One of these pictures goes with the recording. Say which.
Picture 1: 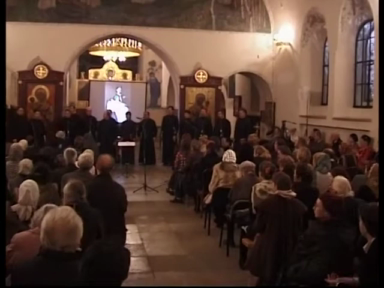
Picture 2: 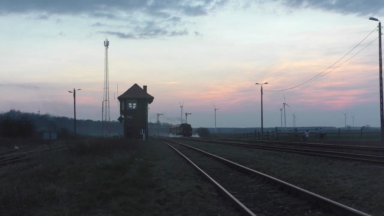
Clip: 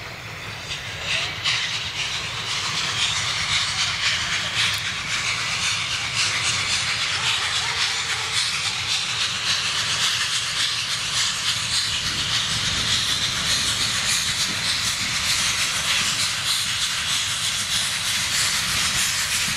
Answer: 2